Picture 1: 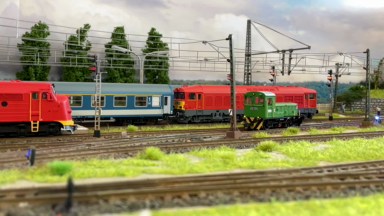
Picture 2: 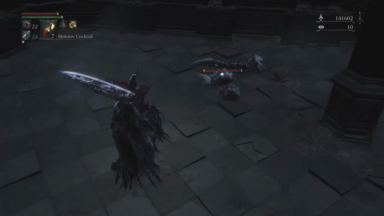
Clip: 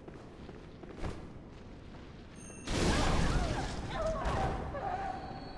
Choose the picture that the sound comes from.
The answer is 2